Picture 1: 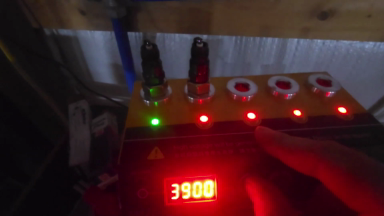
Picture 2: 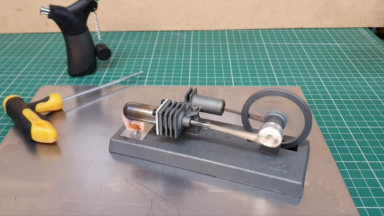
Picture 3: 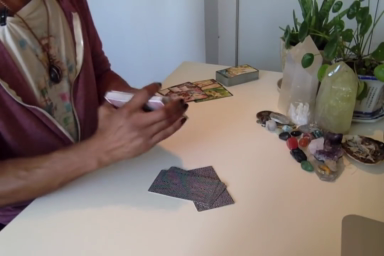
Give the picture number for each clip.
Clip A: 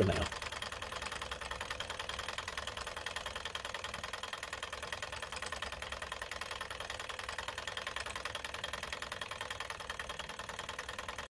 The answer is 2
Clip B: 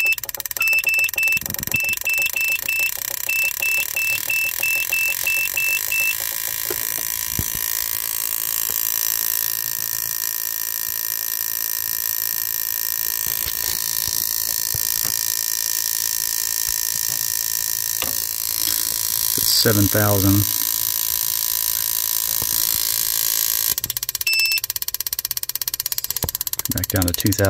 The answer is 1